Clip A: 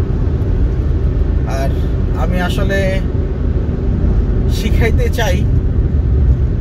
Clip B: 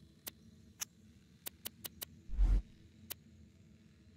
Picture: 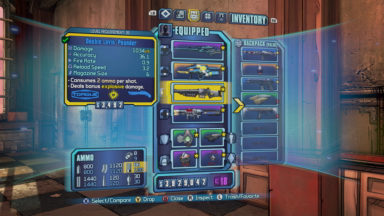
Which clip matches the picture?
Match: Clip B